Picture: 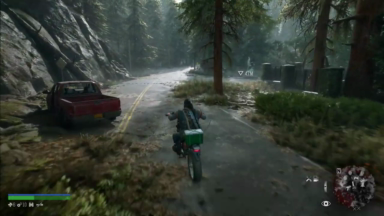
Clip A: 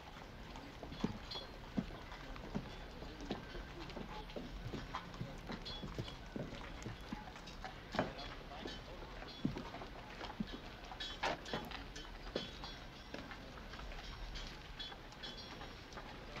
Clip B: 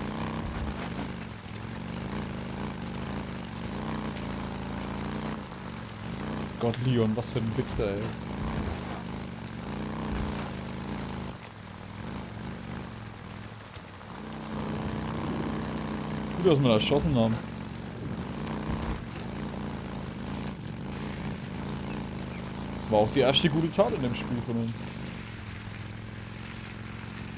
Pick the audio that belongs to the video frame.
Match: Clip B